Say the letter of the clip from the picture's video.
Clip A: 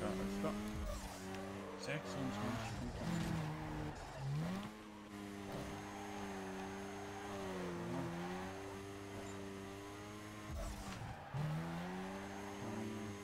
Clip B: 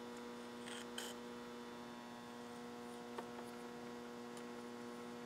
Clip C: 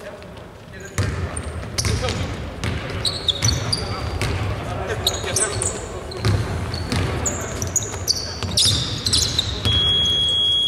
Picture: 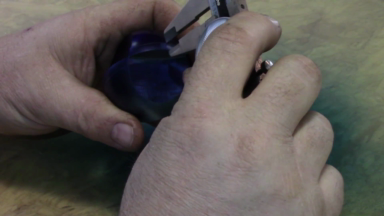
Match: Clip B